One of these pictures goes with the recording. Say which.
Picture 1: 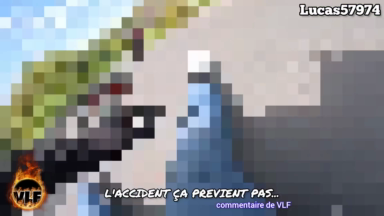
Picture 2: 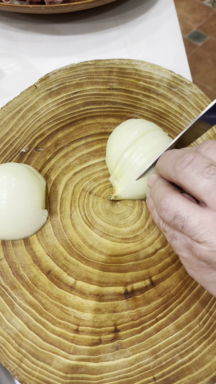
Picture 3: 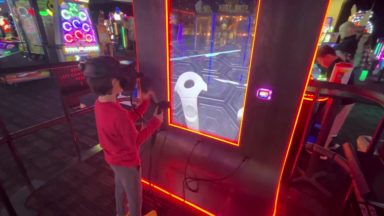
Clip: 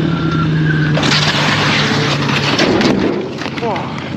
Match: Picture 1